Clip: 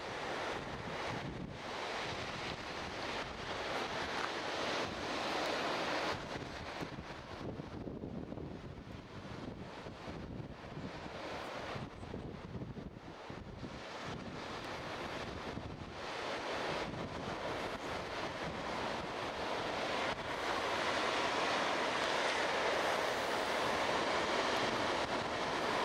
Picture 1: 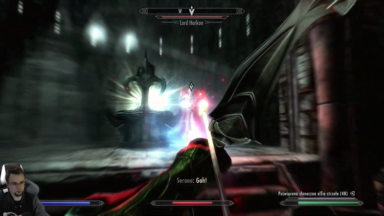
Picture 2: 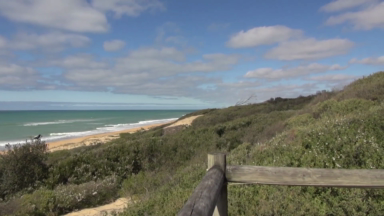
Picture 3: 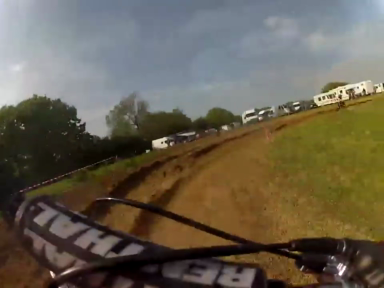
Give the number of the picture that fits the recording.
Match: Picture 2